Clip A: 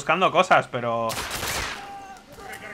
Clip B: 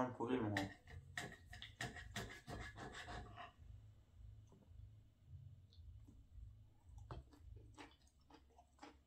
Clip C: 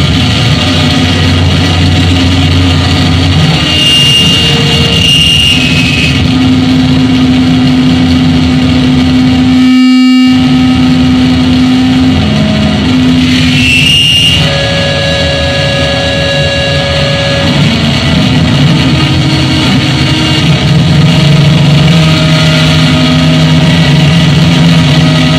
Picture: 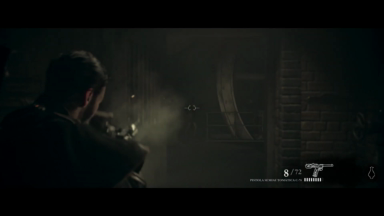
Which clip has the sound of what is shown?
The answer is A